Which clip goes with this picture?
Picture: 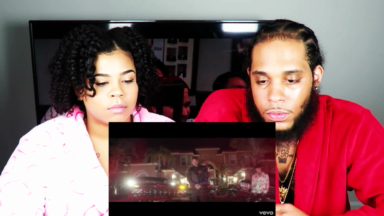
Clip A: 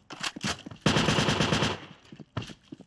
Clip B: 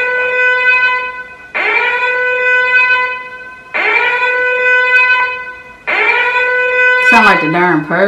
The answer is B